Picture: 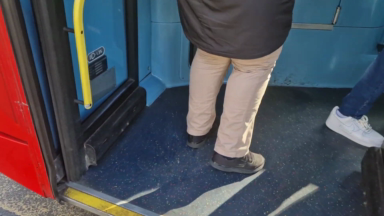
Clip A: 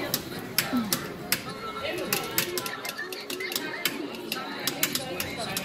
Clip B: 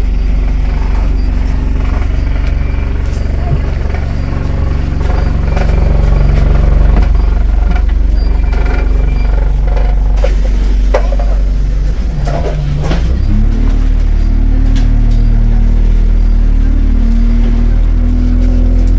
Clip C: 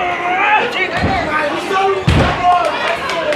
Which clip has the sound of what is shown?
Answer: B